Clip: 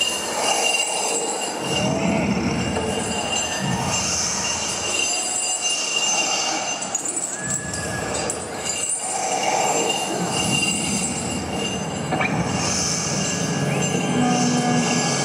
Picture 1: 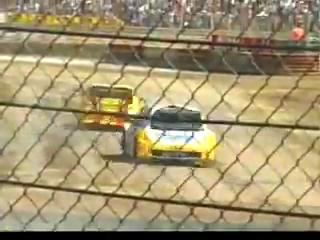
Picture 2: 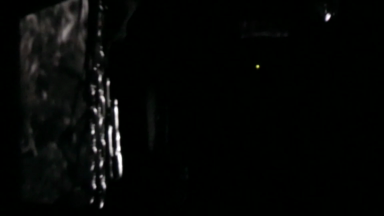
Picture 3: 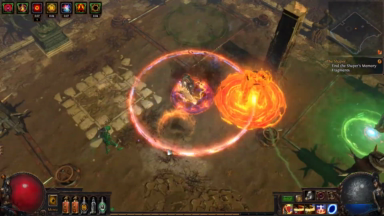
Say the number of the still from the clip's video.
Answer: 2